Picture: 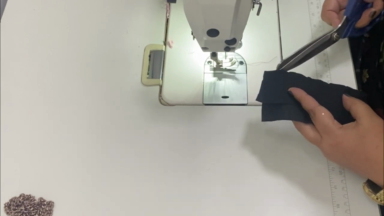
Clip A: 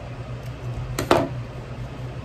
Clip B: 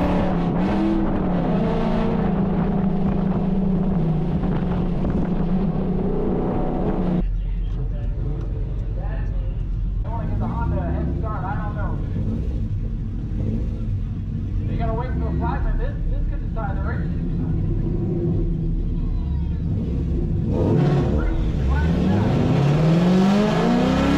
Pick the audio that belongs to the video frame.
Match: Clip A